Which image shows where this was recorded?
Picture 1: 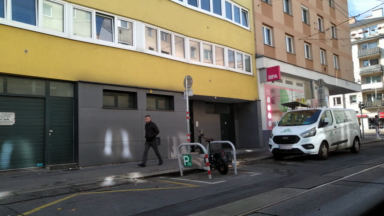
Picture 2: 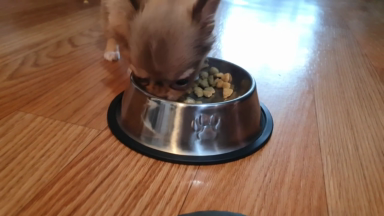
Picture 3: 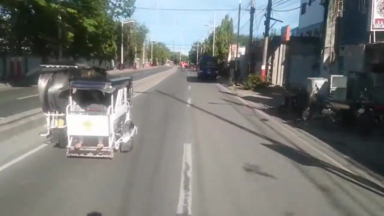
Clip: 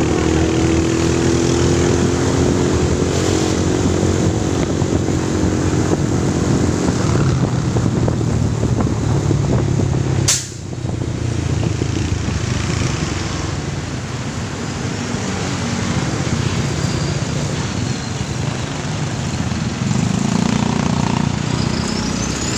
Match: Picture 3